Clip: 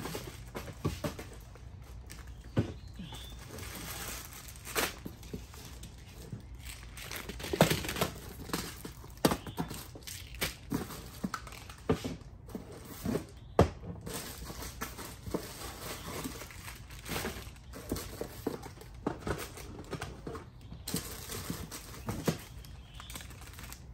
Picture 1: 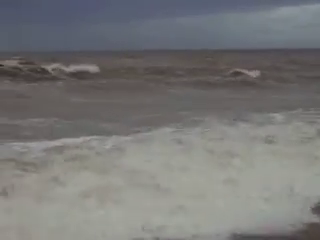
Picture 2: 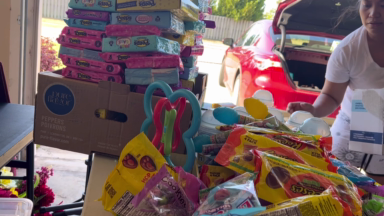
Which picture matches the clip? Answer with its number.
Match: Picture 2